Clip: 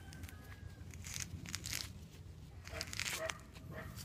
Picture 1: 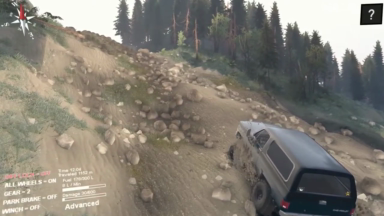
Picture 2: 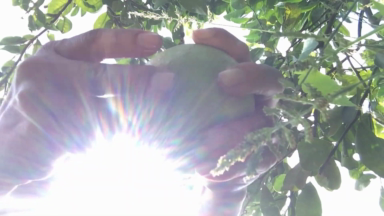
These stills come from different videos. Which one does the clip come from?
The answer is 2